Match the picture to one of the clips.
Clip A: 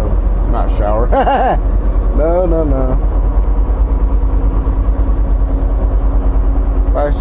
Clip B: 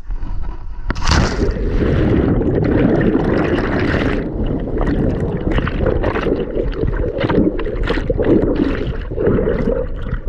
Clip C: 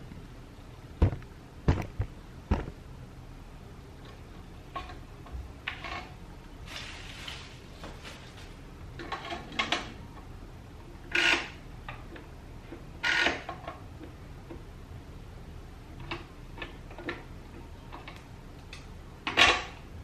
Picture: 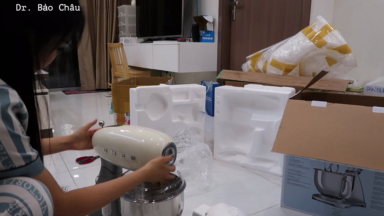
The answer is C